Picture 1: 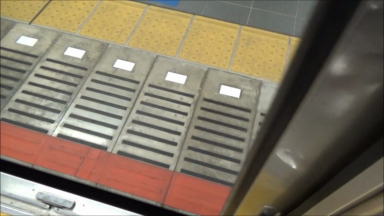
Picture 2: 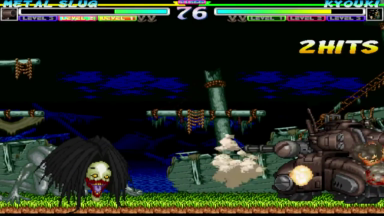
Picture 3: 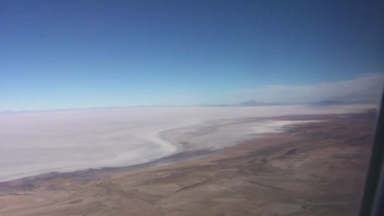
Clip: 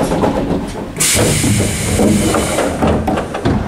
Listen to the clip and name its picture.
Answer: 1